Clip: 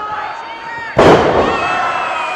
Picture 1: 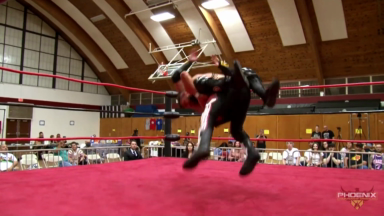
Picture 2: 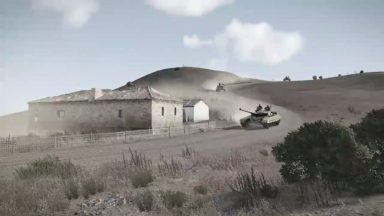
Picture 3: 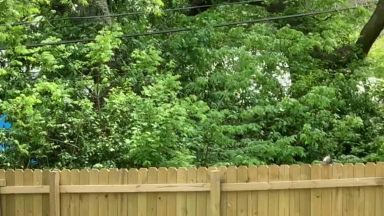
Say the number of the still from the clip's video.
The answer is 1